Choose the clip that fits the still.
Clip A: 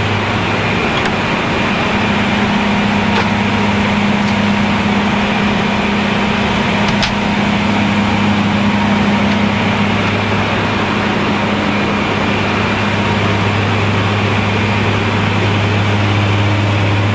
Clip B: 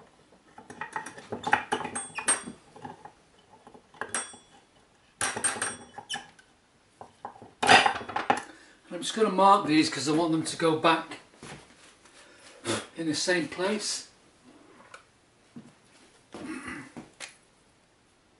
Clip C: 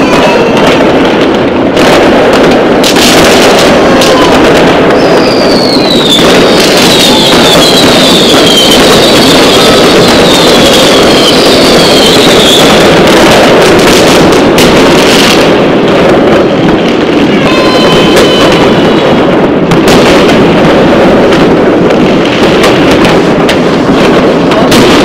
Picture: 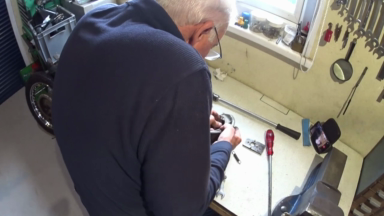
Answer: B